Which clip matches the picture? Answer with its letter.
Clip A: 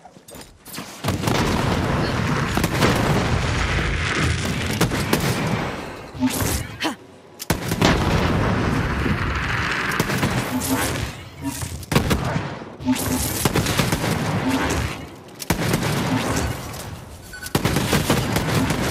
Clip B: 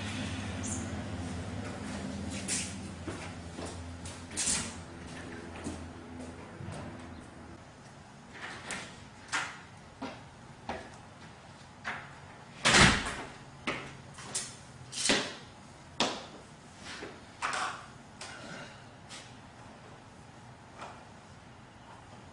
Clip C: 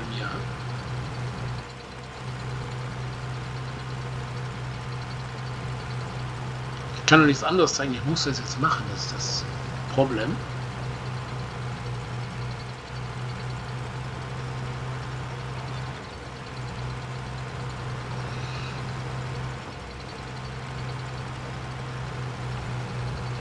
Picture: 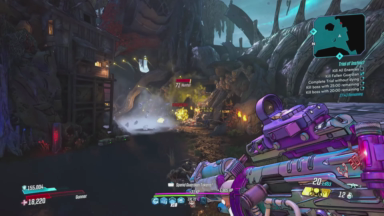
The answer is A